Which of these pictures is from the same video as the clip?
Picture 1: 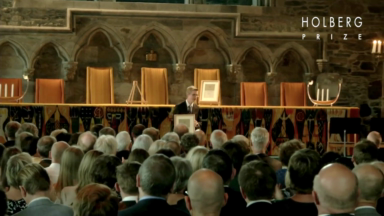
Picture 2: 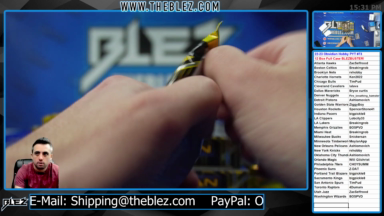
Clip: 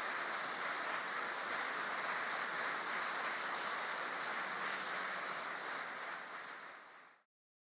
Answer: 1